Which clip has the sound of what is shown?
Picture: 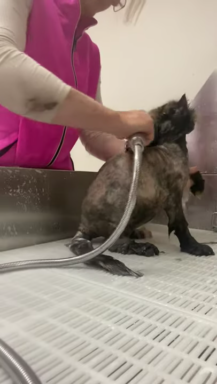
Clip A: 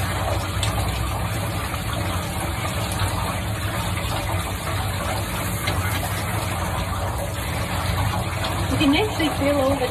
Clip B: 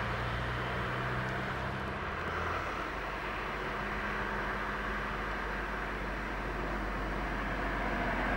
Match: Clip A